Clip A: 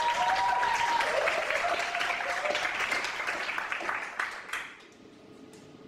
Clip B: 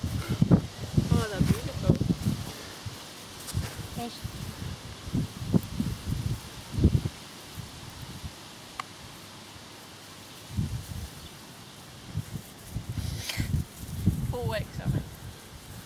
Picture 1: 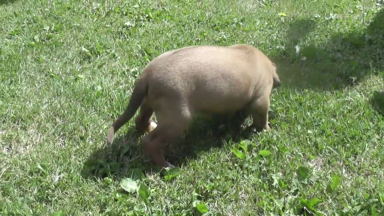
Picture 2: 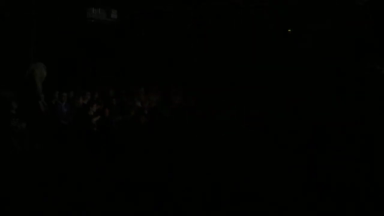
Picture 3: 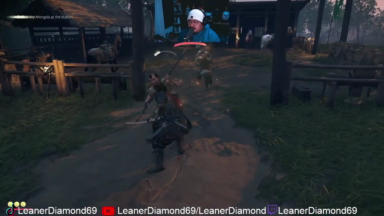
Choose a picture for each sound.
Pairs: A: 2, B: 1